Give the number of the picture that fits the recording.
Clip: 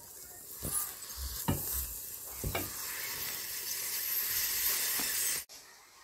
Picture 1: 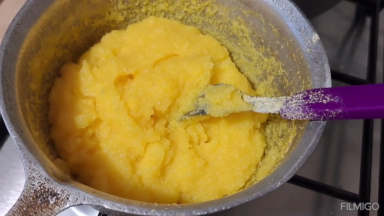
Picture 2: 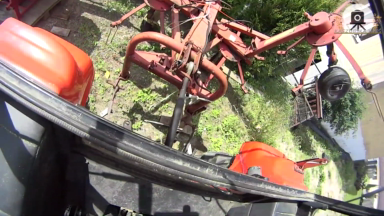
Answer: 1